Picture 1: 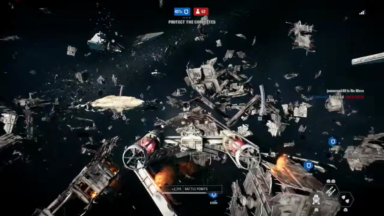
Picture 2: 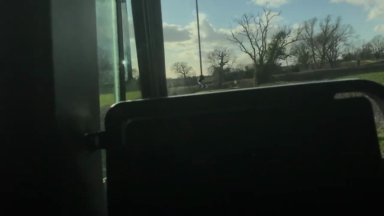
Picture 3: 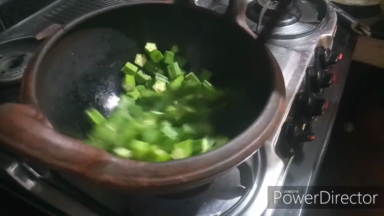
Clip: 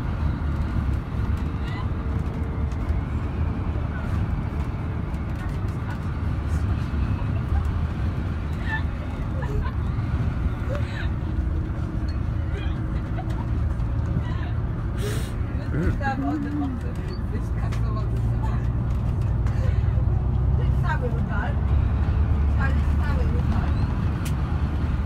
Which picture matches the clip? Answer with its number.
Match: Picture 2